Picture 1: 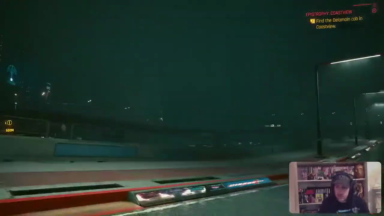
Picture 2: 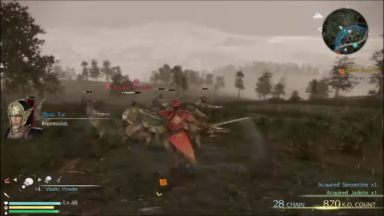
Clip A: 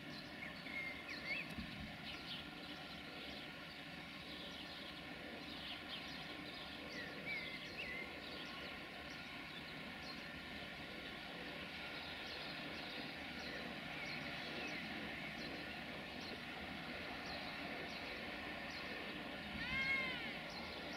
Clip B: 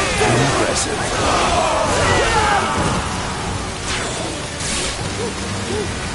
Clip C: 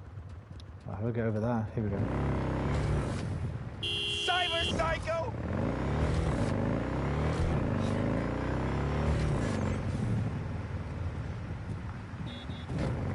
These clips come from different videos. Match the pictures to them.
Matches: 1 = C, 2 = B